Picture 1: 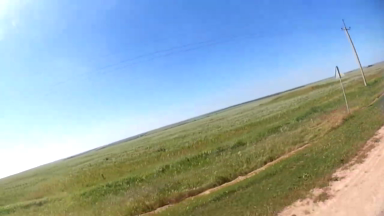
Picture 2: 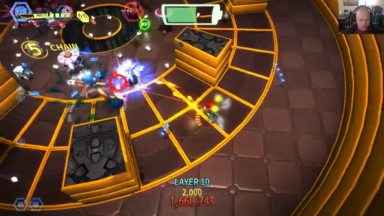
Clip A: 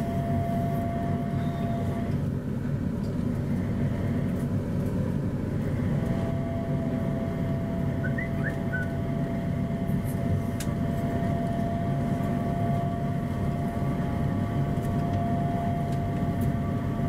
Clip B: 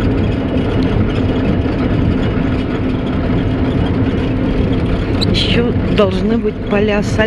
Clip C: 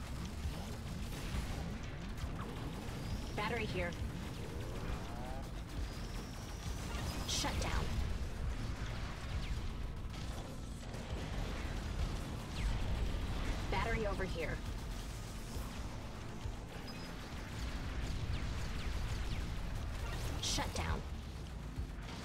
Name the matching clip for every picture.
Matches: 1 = B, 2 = C